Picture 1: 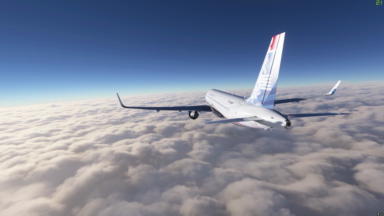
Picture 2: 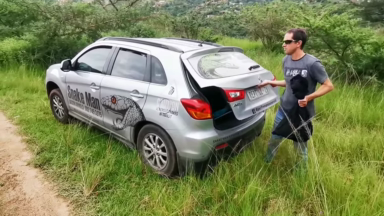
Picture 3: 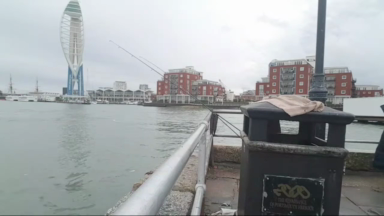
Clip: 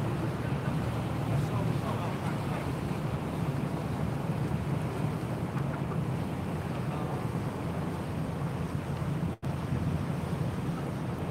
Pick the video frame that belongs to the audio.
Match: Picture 3